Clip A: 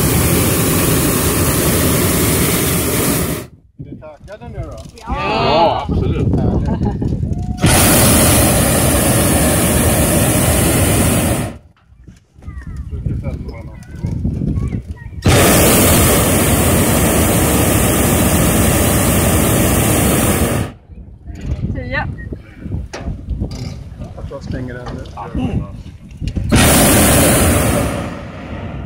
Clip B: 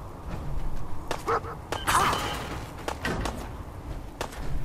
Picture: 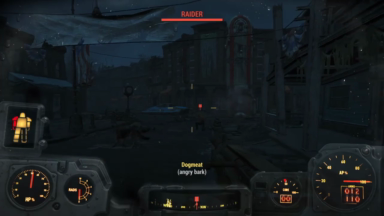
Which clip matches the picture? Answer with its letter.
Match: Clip B